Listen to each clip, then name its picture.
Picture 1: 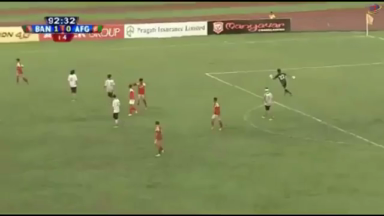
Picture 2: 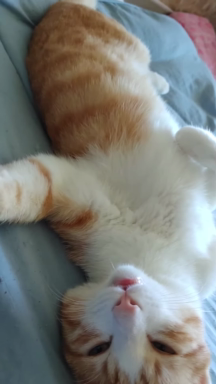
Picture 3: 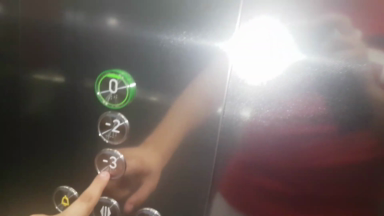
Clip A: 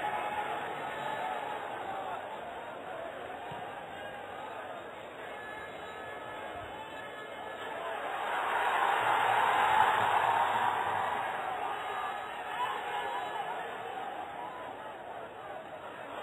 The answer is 1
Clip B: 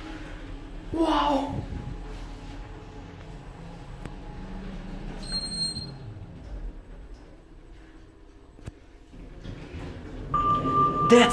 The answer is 3